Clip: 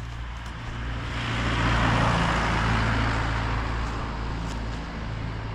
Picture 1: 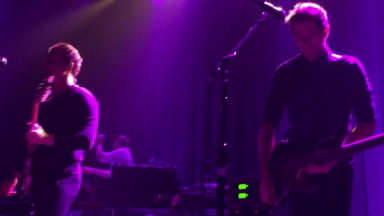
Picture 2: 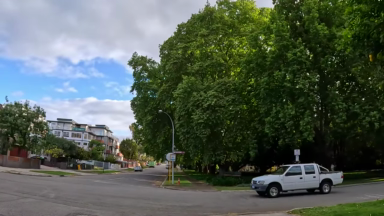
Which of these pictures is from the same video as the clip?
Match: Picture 2